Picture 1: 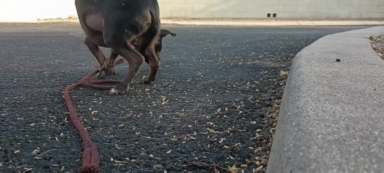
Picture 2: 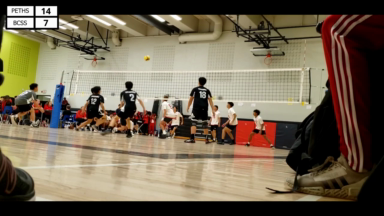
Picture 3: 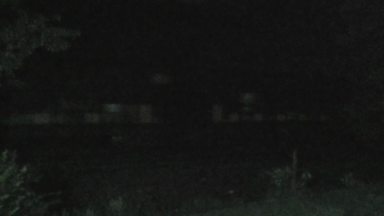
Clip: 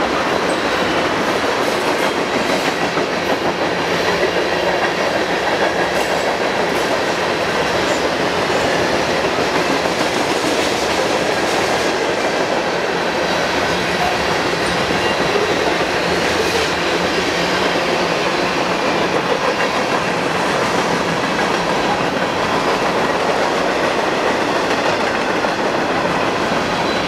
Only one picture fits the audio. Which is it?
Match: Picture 3